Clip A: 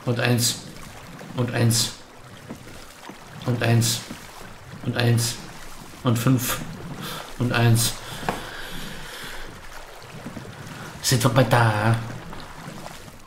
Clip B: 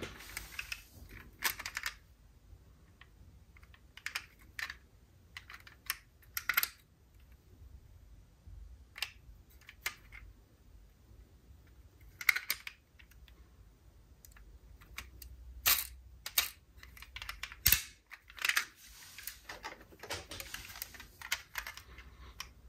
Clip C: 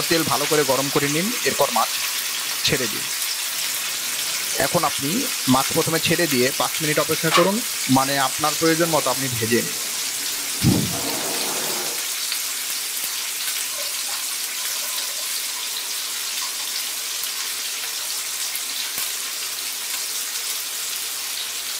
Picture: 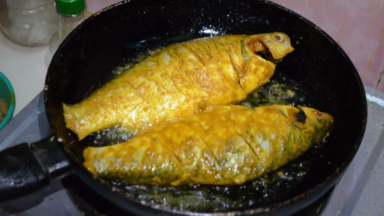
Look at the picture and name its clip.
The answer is C